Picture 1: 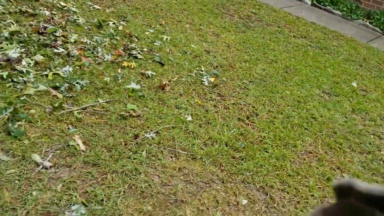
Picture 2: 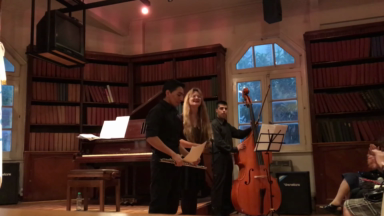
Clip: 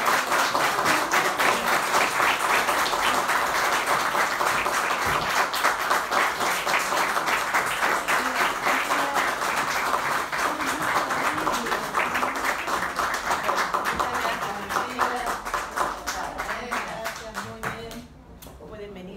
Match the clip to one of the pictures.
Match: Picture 2